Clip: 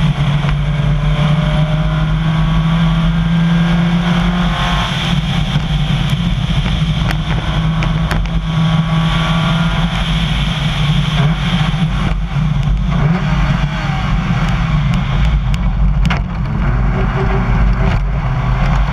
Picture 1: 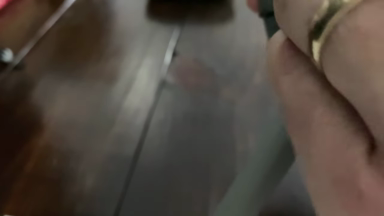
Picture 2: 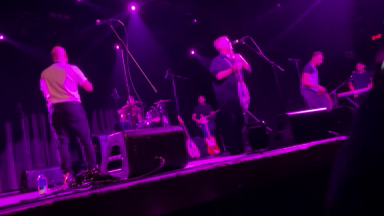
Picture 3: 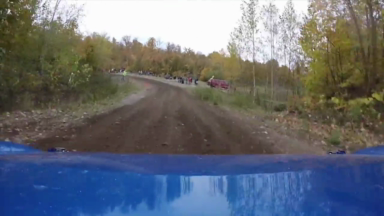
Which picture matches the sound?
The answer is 3